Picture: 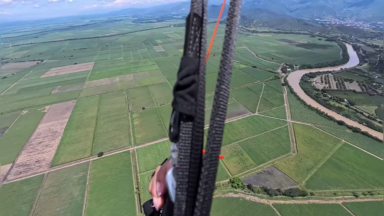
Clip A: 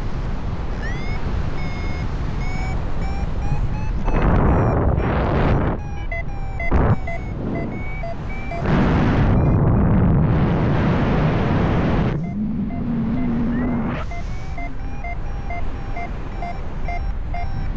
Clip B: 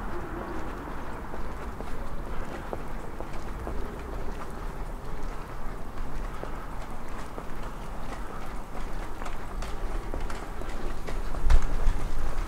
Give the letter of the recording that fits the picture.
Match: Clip A